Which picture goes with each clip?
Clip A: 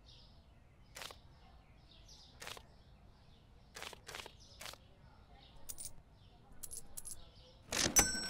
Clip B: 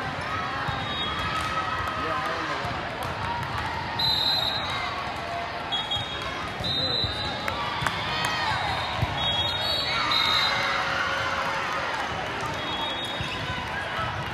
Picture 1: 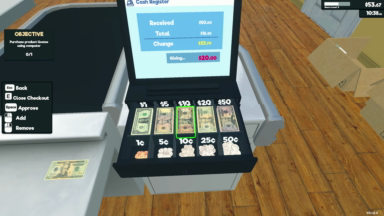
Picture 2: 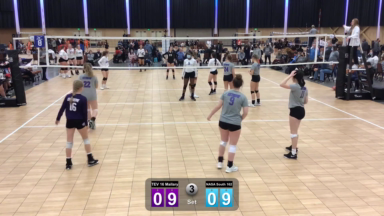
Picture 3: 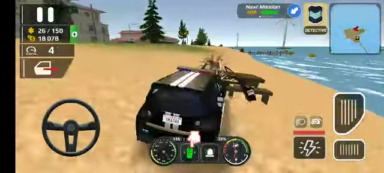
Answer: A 1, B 2